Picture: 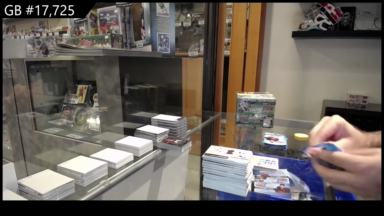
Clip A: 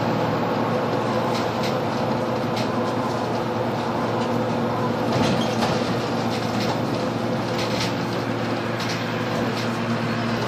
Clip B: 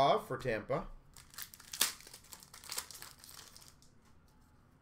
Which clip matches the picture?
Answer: B